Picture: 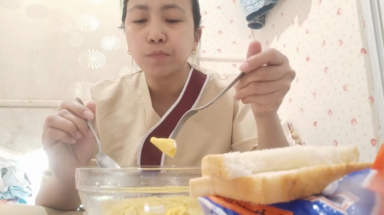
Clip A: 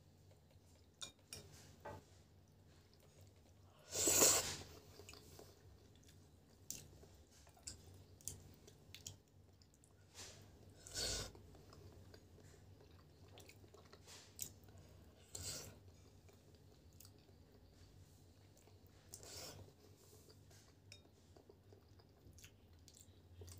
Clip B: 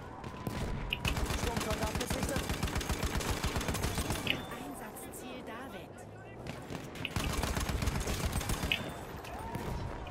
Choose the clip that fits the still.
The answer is A